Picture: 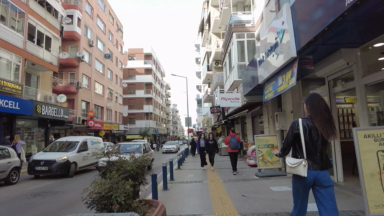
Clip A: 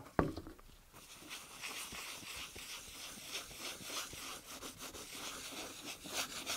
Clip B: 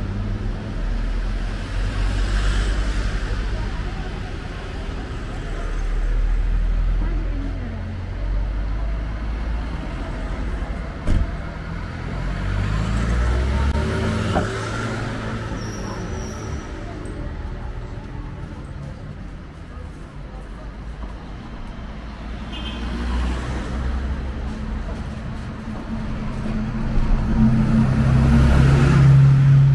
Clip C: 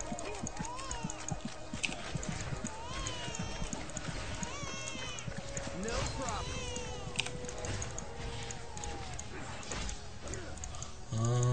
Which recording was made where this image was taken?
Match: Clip B